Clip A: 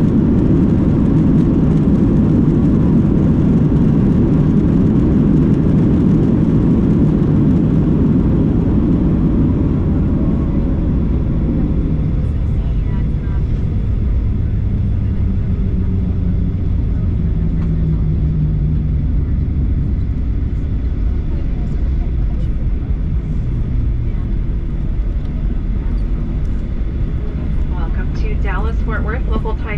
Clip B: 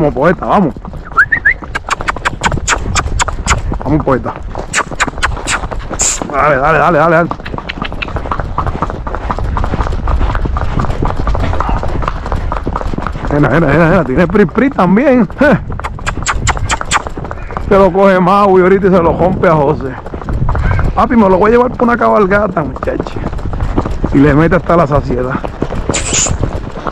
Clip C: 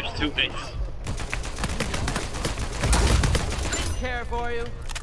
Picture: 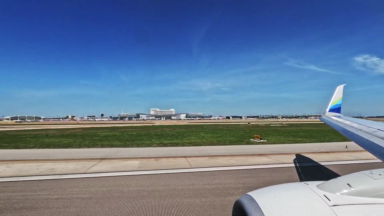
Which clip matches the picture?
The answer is A